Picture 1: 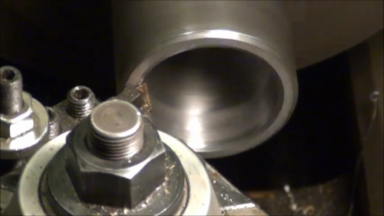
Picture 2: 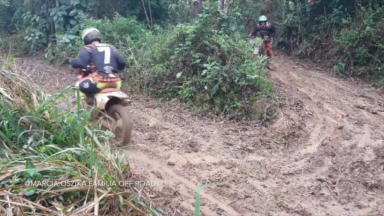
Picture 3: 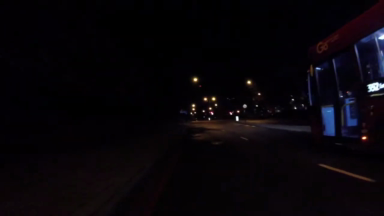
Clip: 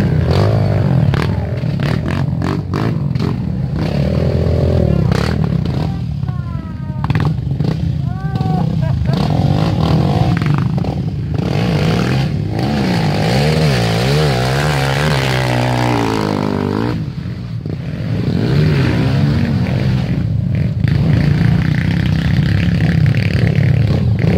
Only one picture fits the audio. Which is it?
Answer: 2